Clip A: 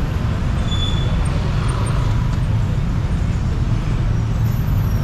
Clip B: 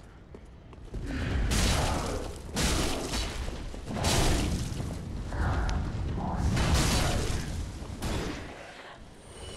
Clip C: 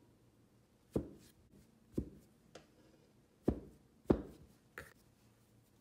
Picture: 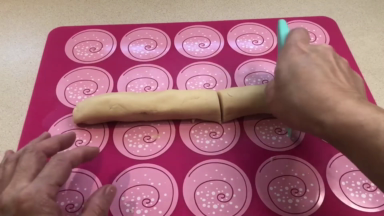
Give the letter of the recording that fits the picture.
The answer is C